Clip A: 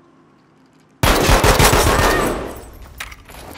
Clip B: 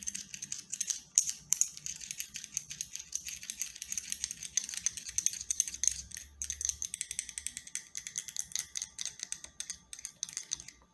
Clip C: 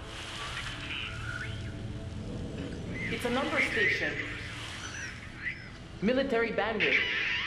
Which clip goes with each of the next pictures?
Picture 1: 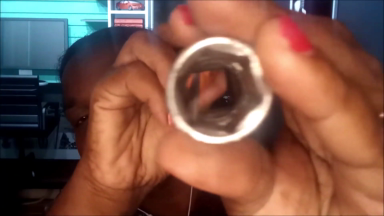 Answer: B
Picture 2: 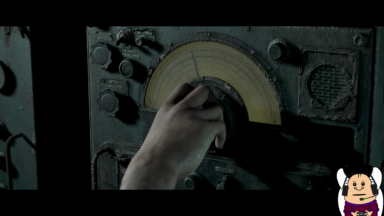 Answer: C